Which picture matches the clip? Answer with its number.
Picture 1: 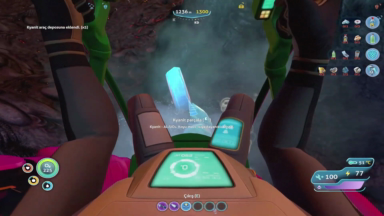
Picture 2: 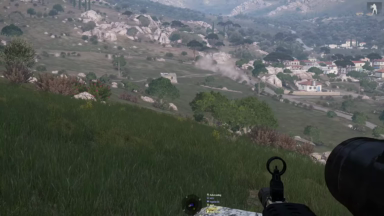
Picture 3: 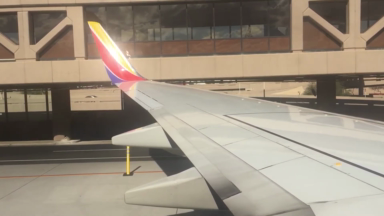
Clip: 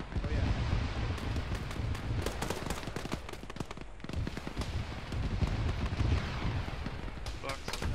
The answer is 2